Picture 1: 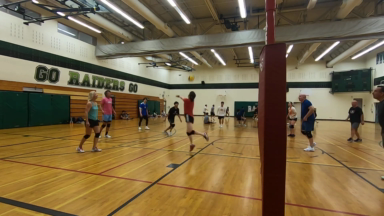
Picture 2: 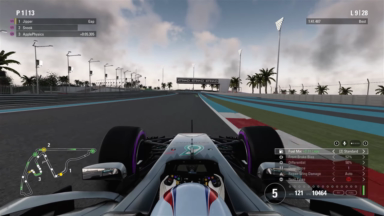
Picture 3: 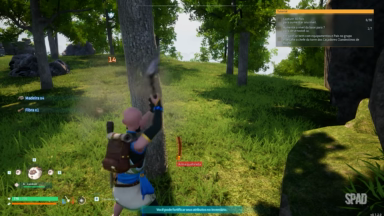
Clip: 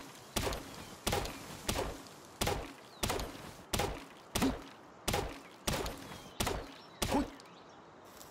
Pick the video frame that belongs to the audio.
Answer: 3